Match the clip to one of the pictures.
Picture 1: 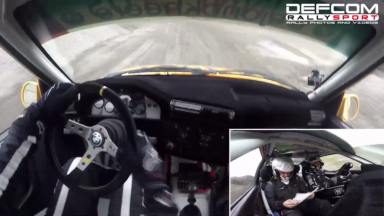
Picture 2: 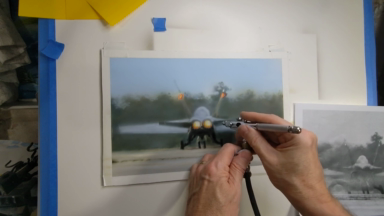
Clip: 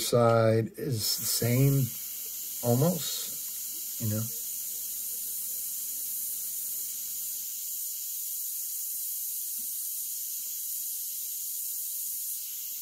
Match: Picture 2